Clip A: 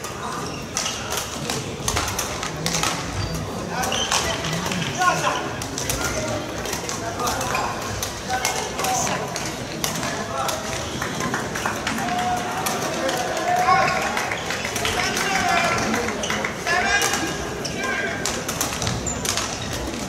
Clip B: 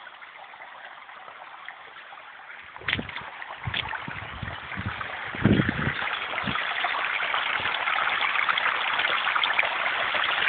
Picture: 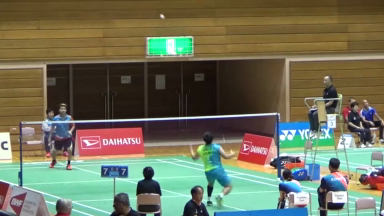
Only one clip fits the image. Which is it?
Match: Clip A